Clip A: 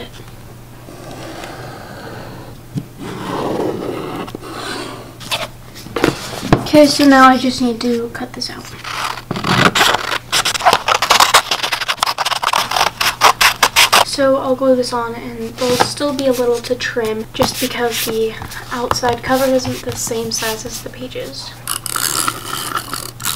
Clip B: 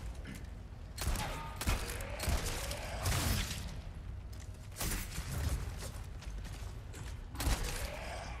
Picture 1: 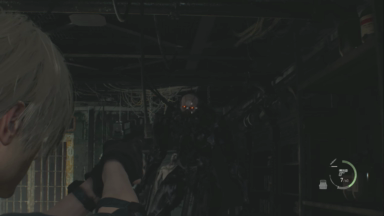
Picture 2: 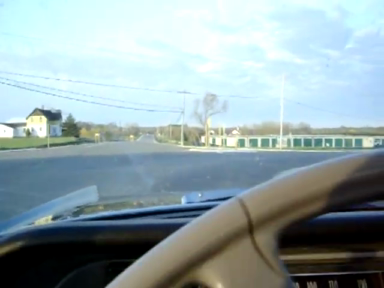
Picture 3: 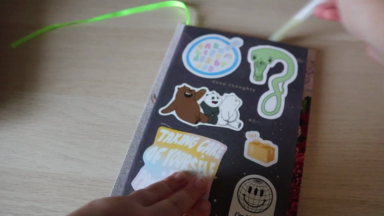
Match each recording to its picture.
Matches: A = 3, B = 1